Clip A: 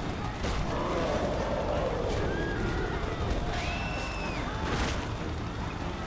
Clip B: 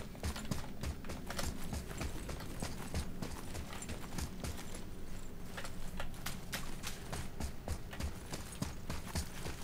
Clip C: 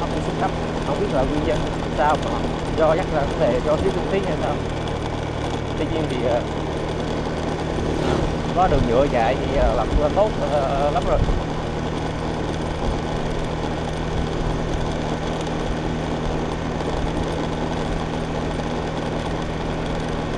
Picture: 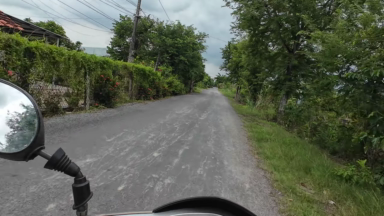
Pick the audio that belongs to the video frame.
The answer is C